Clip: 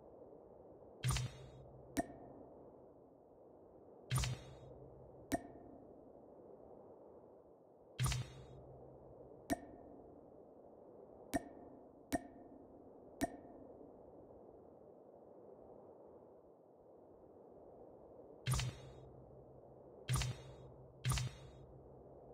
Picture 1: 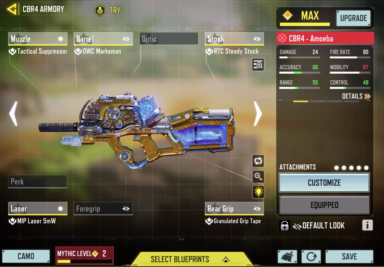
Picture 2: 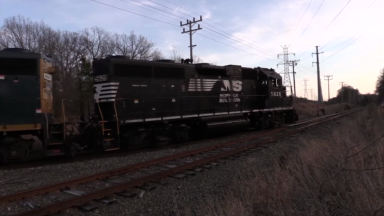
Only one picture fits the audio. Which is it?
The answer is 1